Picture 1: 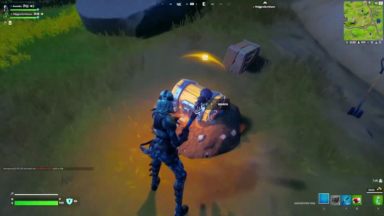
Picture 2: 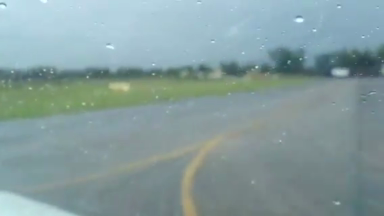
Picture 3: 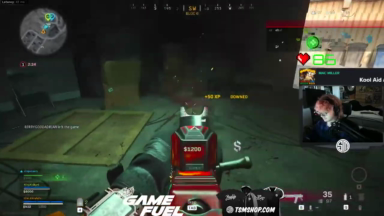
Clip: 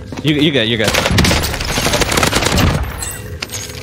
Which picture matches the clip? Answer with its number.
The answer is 3